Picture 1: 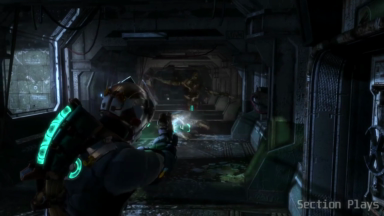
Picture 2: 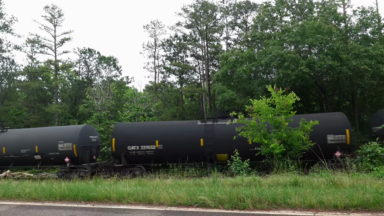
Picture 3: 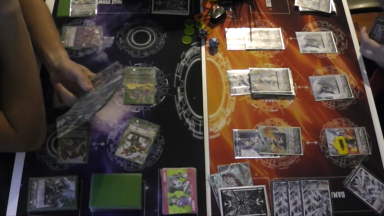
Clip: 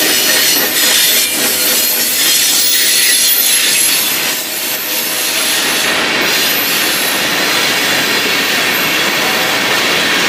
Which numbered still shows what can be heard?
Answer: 2